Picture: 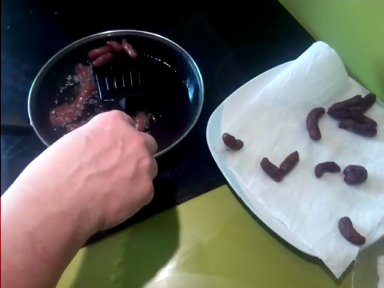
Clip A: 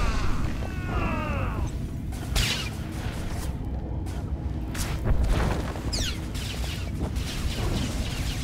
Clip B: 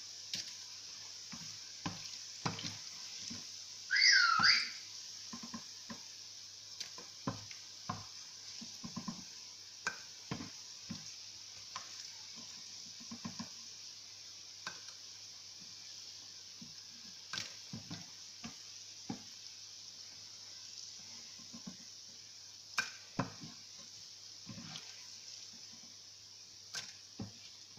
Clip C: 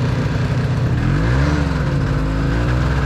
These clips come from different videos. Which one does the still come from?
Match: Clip B